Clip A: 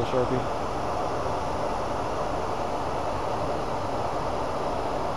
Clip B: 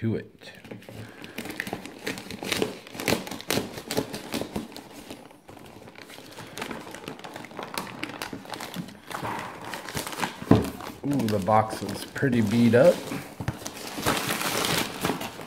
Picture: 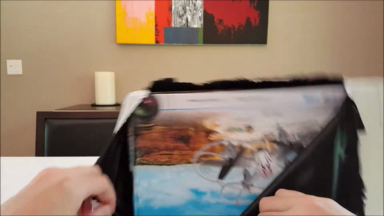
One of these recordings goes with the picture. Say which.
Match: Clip B